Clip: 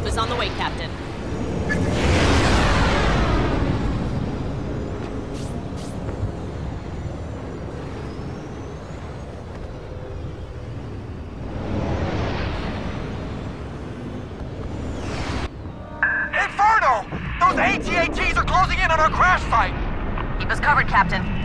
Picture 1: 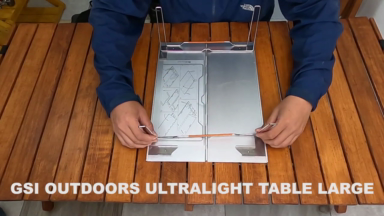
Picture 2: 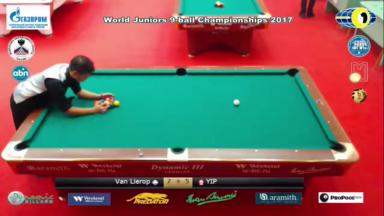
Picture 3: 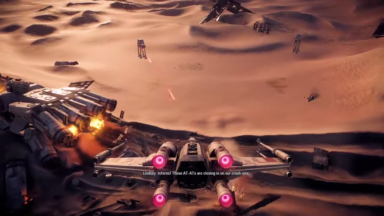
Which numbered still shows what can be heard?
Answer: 3